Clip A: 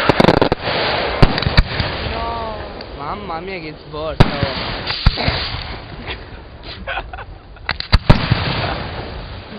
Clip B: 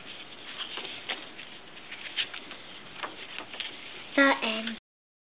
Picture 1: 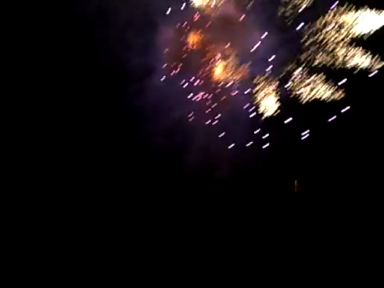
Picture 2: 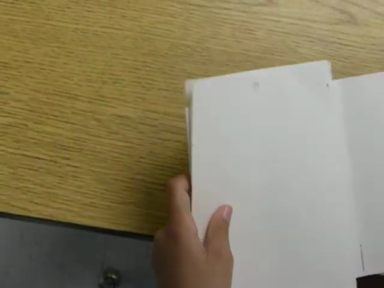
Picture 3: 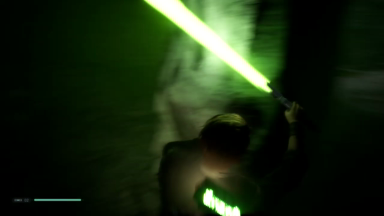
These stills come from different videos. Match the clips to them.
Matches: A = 1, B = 2